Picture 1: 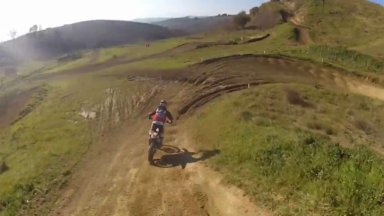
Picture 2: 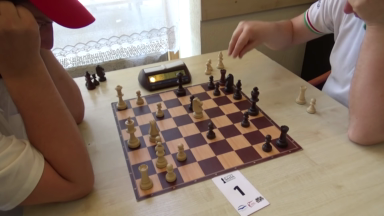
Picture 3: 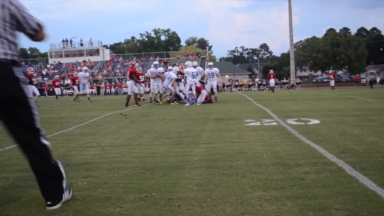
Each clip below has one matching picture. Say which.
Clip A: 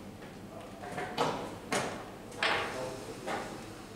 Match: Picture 2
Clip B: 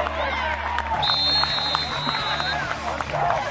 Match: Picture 3